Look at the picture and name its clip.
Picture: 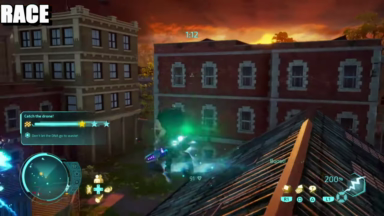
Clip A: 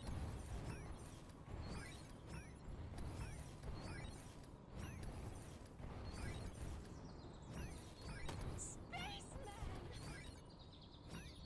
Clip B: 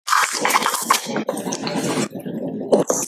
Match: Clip A